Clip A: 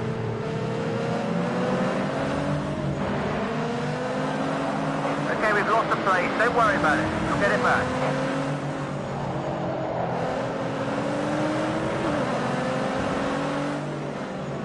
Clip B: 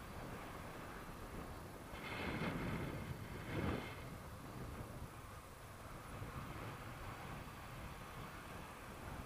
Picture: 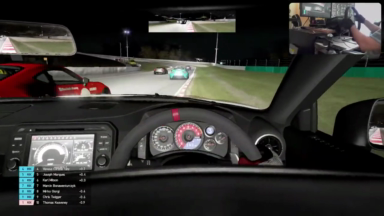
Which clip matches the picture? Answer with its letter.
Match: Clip A